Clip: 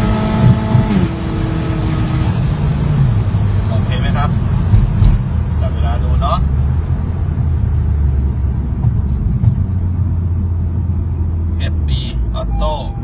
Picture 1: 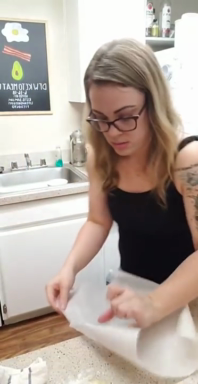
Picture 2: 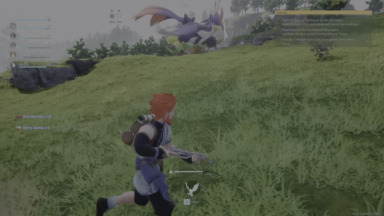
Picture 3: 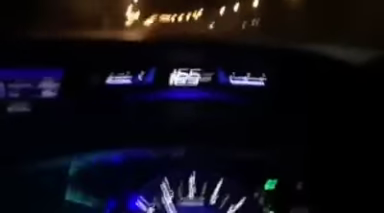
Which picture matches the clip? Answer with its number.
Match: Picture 3